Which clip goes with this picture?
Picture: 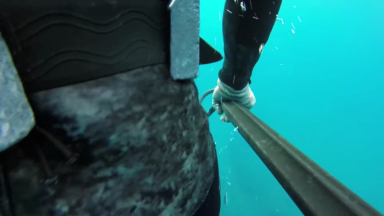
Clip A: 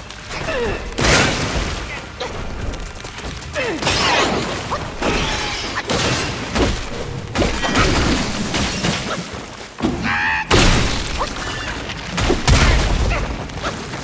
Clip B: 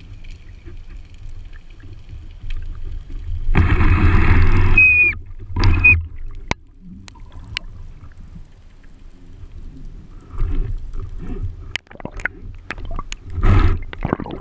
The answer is B